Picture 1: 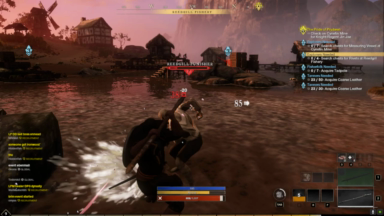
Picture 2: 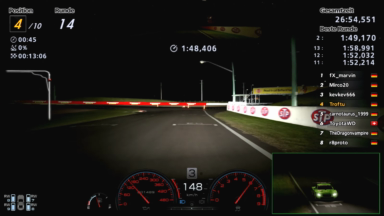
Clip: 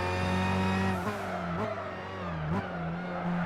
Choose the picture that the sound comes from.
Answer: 2